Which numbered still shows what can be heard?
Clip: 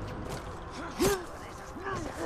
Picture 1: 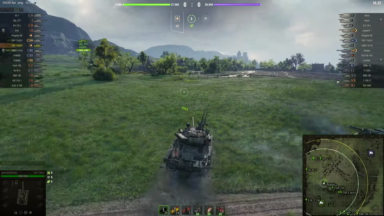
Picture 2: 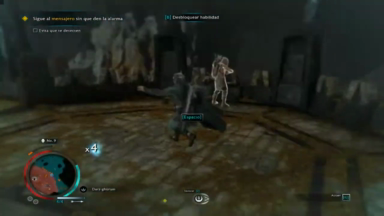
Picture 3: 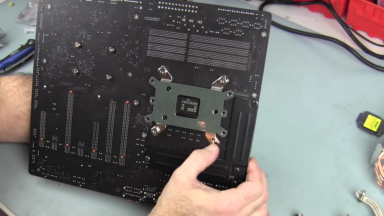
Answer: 2